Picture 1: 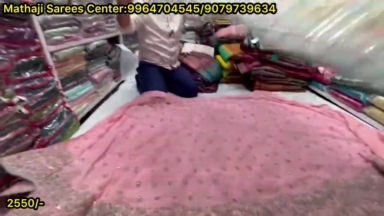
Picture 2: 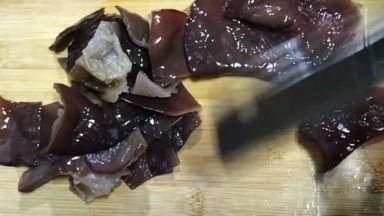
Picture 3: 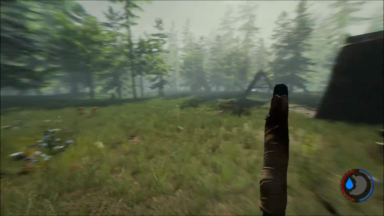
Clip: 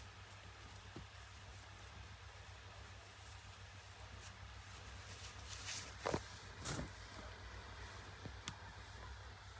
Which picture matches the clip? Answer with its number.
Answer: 1